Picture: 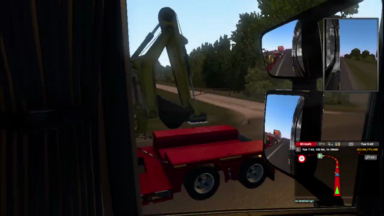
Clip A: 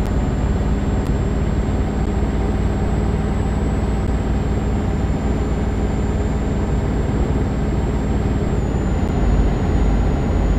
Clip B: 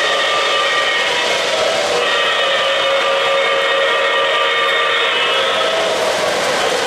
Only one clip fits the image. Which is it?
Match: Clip A